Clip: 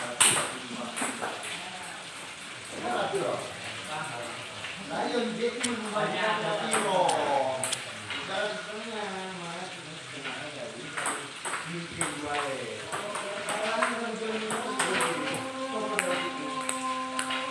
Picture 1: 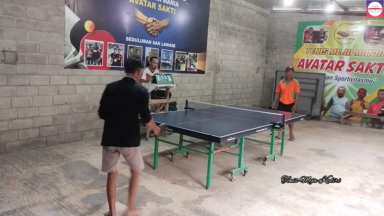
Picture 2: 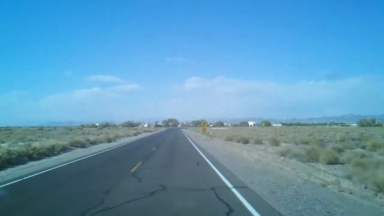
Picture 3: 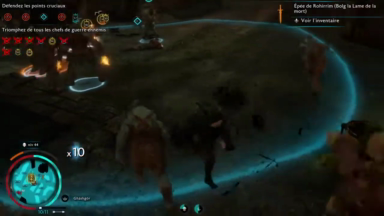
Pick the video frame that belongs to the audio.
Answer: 1